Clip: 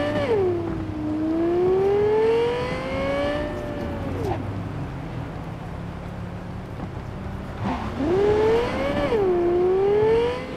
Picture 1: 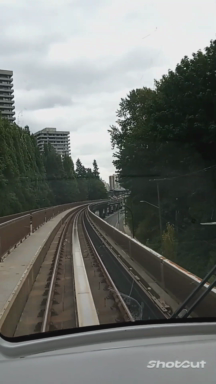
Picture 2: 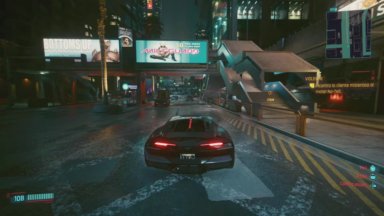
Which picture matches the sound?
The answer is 2